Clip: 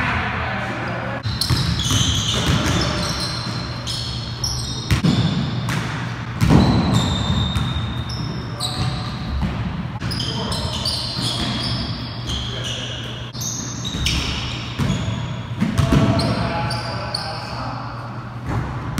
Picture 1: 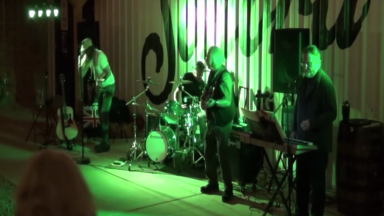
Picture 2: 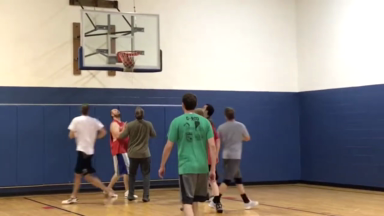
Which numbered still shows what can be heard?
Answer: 2